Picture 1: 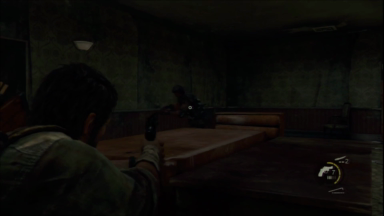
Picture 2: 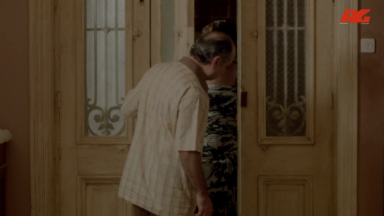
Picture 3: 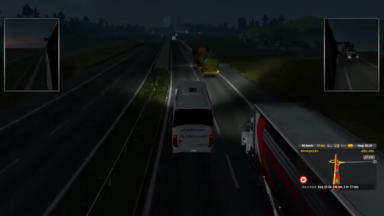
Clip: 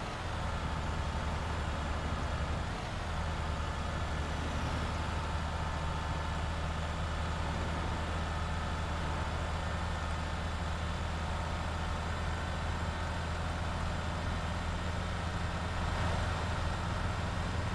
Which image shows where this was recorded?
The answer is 3